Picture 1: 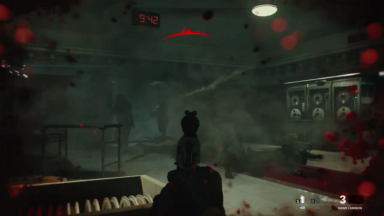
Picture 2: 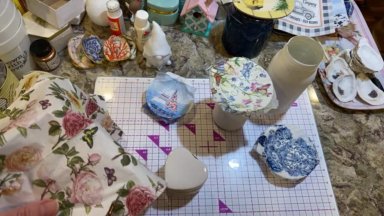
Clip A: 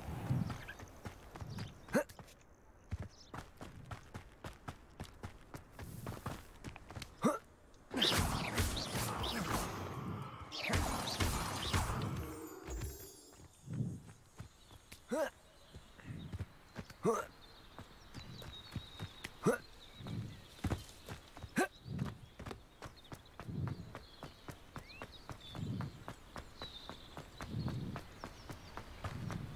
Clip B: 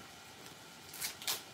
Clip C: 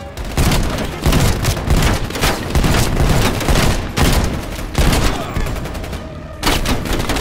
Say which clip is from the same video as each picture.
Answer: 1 C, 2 B